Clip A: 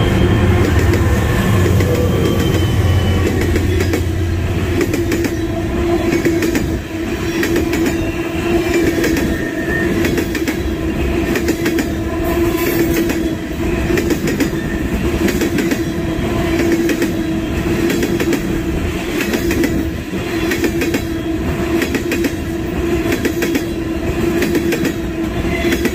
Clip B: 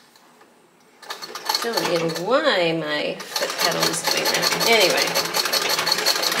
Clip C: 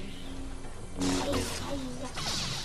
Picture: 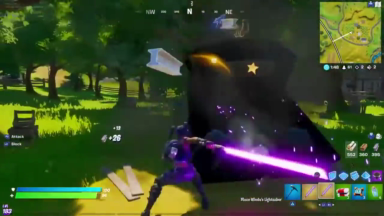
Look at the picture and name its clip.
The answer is C